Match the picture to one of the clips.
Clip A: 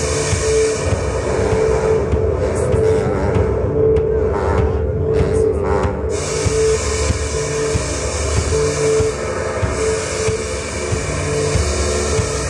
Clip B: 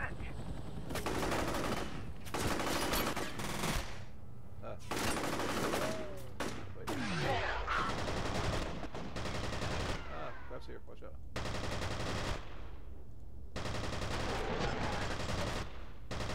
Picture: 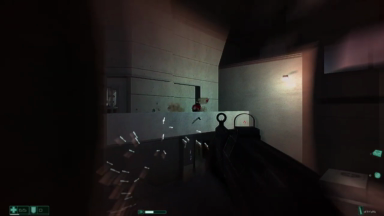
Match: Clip B